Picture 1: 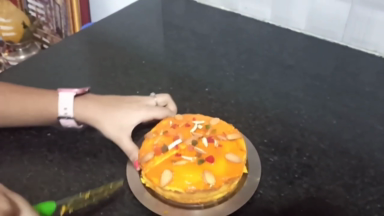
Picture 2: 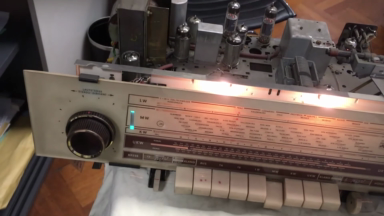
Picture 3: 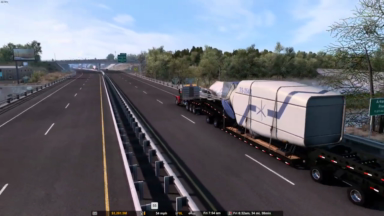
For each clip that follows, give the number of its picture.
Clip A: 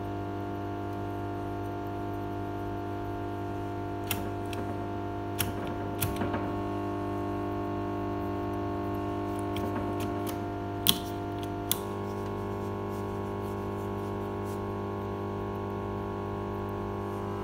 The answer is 2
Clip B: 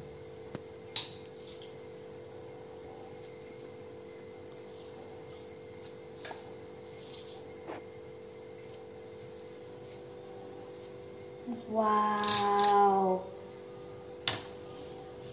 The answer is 1